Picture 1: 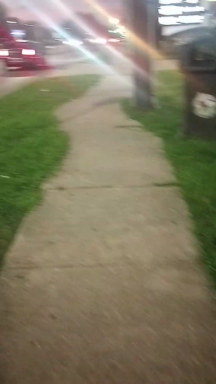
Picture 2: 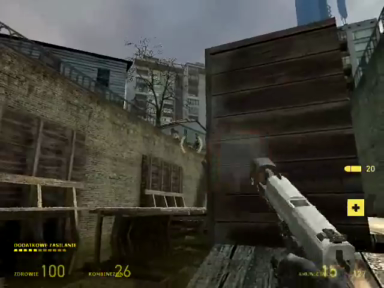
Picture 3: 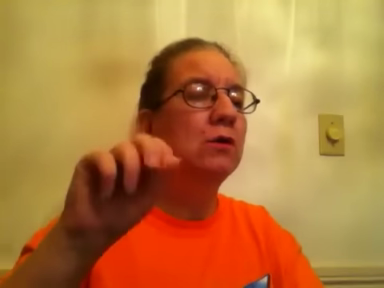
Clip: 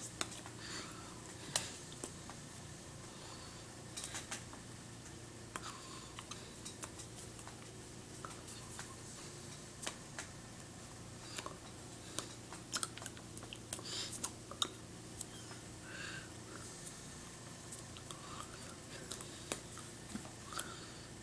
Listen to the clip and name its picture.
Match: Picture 3